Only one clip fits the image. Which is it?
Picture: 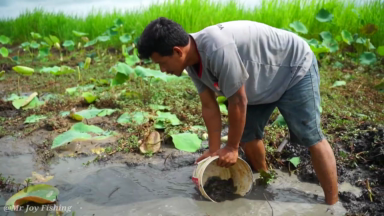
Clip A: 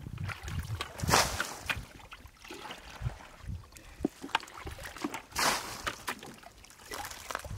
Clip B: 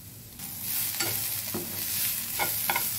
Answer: A